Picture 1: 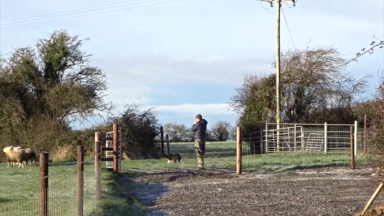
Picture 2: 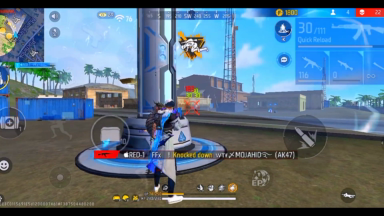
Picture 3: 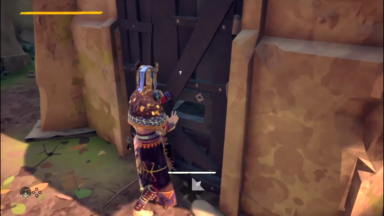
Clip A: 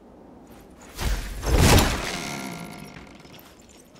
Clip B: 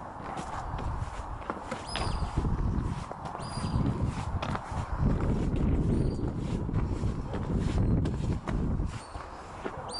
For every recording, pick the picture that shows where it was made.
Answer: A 3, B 1